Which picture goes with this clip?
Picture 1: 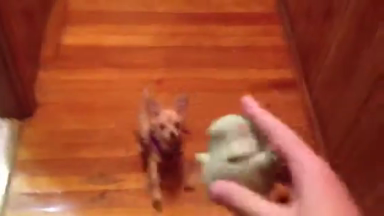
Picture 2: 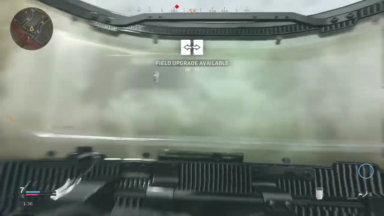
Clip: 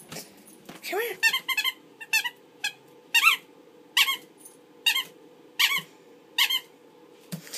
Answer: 1